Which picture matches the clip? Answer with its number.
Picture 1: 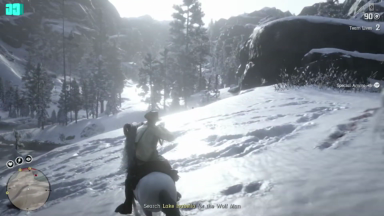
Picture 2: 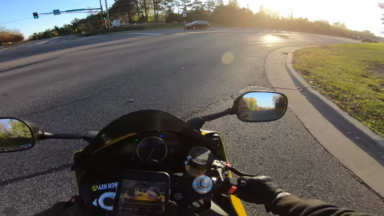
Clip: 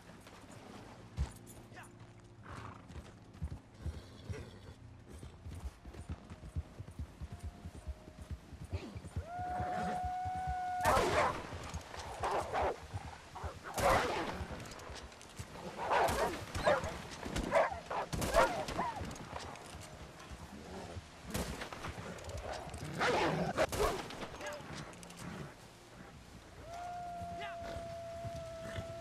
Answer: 1